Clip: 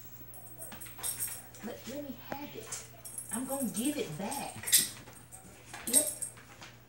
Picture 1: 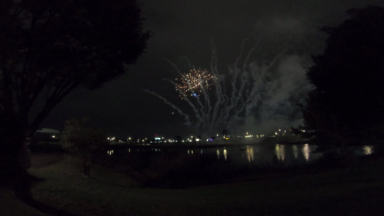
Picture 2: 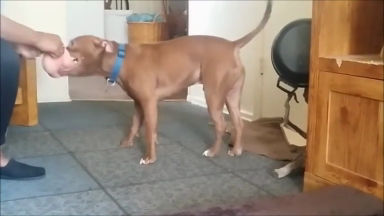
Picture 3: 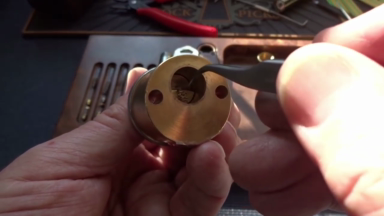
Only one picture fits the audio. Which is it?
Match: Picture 2